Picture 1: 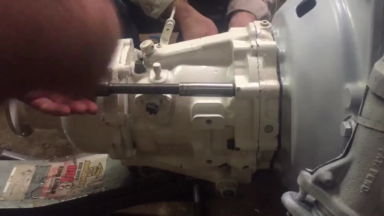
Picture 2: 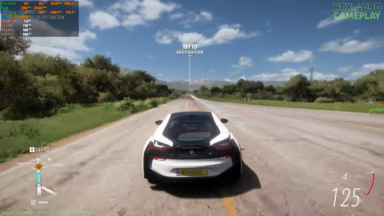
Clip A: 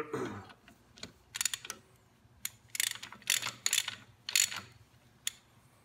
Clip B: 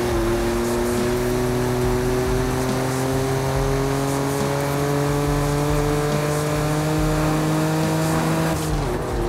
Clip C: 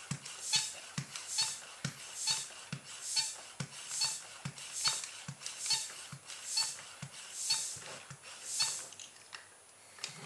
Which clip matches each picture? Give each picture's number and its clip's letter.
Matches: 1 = A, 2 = B